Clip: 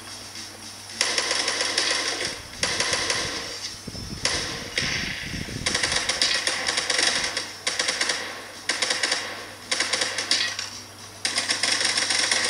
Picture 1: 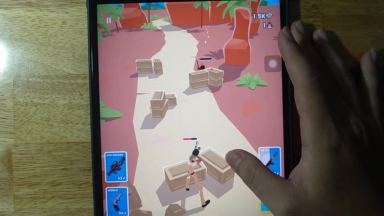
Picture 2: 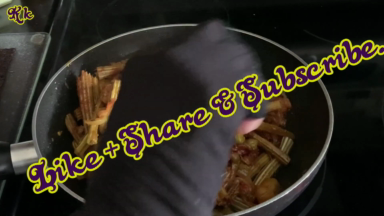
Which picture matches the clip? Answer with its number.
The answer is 1